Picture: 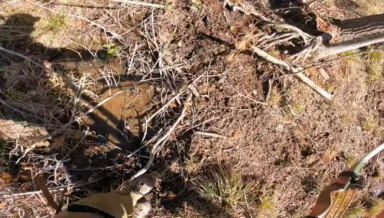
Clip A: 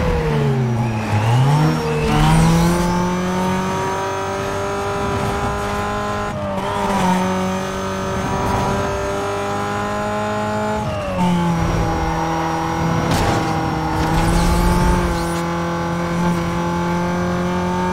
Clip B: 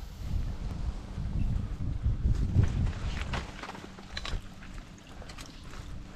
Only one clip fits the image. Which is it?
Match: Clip B